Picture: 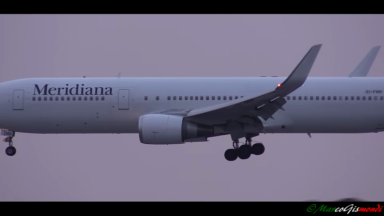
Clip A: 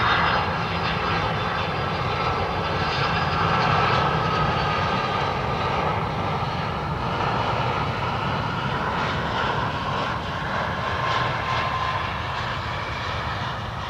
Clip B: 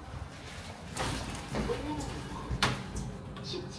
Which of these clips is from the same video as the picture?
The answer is A